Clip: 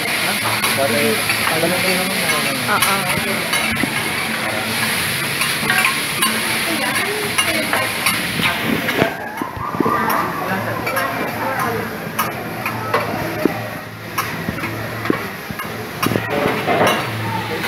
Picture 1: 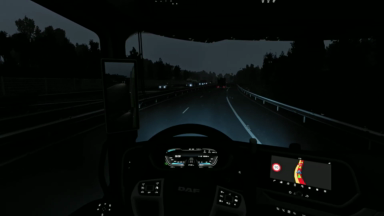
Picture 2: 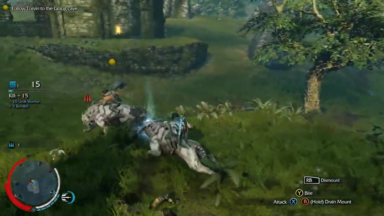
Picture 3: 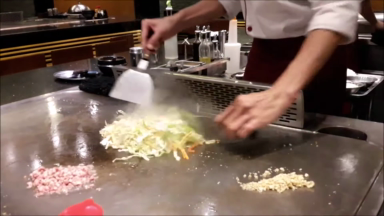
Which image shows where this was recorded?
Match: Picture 3